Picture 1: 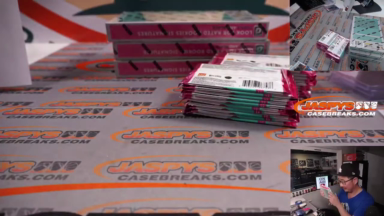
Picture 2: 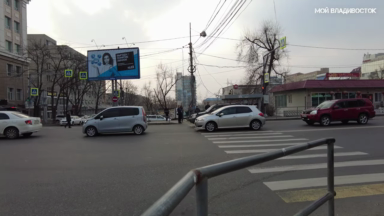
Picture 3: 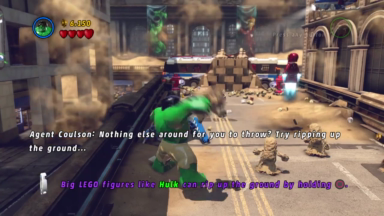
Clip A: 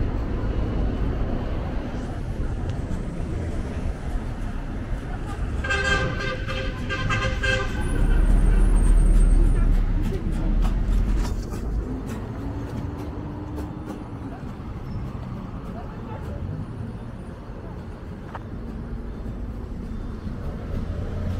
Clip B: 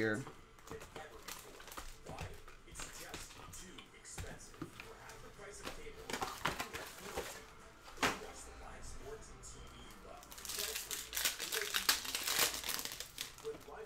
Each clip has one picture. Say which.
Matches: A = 2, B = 1